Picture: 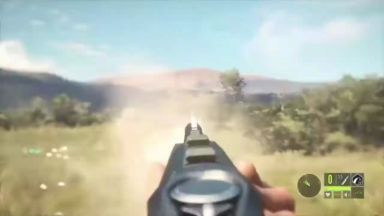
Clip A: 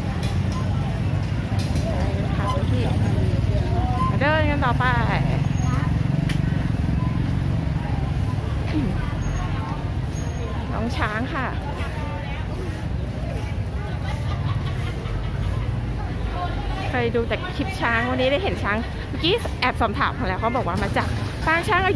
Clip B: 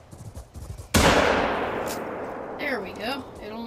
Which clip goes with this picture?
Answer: B